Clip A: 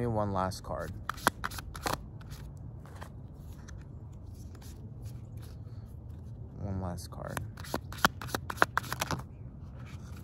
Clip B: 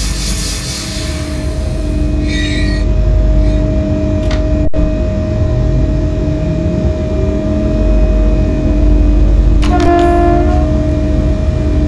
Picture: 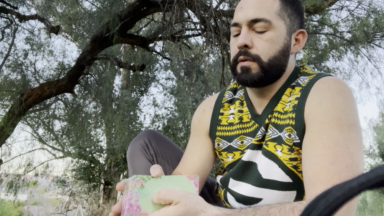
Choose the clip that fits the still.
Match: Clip A